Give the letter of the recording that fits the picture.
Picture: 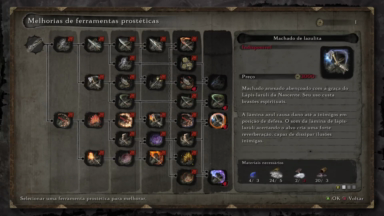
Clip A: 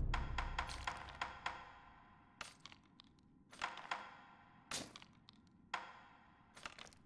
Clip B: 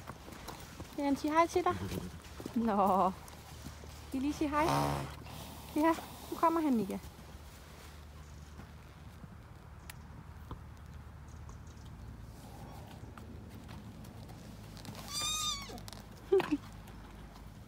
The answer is A